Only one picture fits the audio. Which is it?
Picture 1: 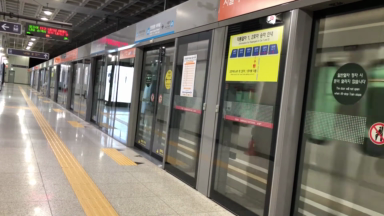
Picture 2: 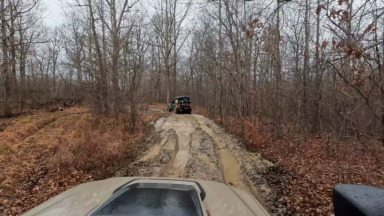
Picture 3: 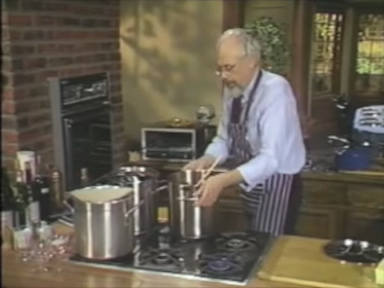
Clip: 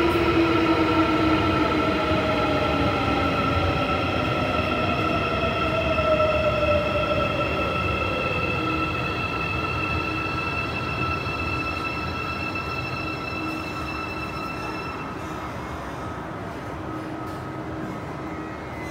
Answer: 1